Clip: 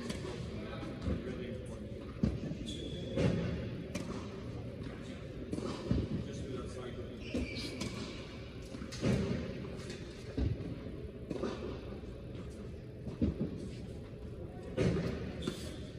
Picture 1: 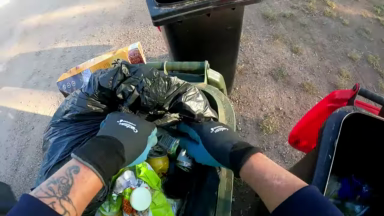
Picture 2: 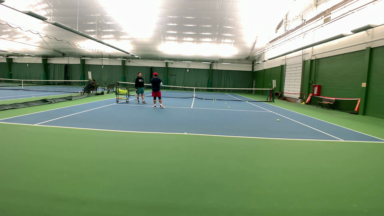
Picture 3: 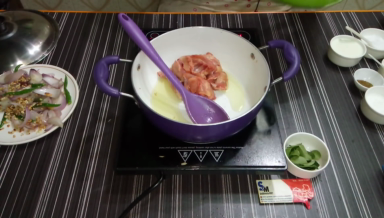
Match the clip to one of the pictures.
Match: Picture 2